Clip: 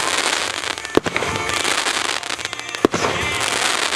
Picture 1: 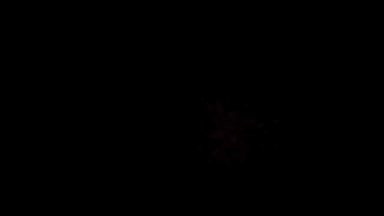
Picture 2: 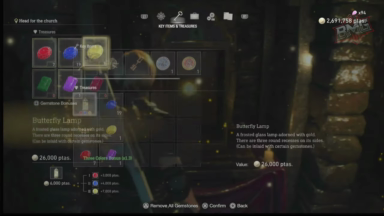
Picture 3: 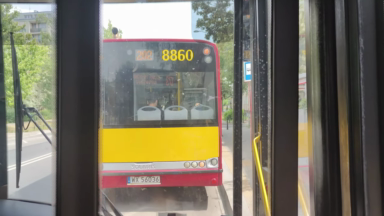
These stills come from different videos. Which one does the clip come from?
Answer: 1